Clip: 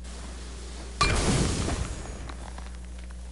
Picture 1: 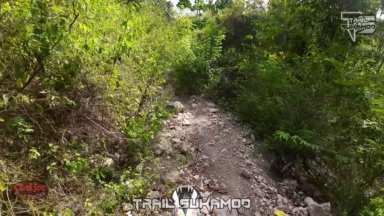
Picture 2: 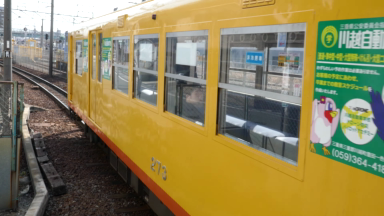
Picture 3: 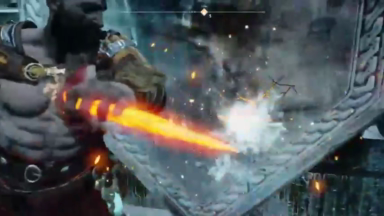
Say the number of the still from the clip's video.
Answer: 3